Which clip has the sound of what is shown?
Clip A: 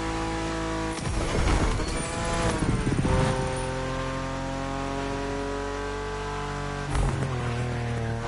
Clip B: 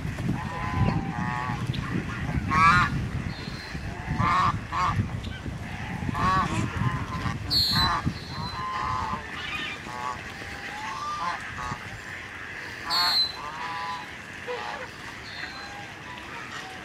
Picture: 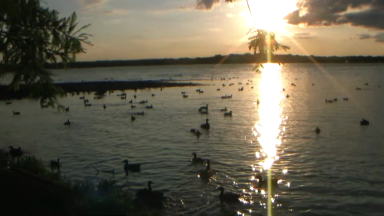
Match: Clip B